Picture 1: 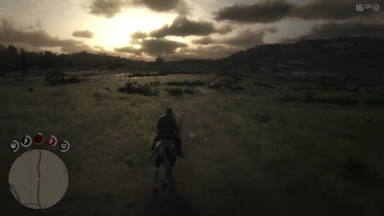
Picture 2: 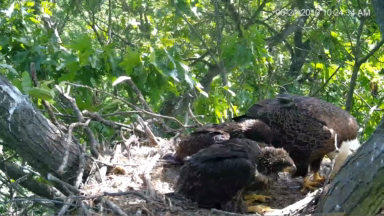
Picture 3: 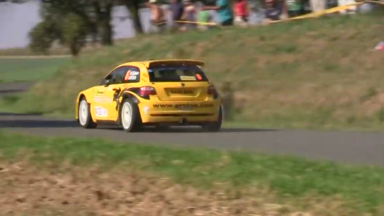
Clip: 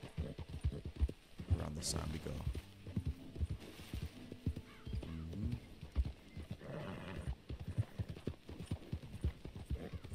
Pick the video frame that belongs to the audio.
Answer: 1